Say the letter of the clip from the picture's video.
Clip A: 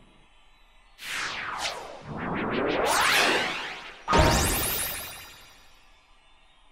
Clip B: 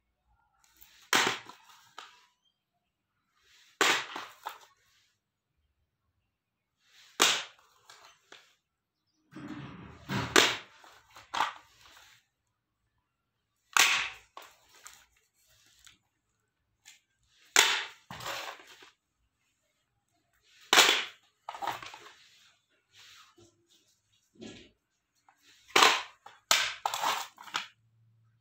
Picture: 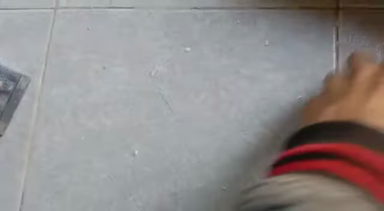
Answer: B